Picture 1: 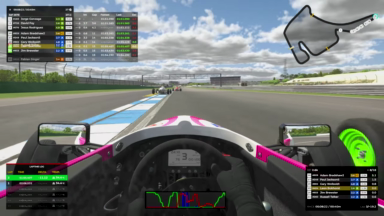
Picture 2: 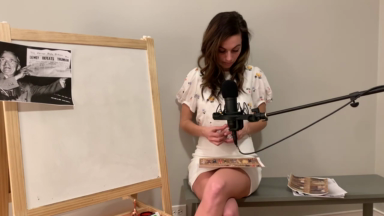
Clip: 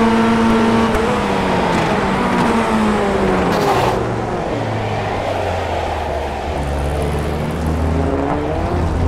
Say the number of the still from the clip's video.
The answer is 1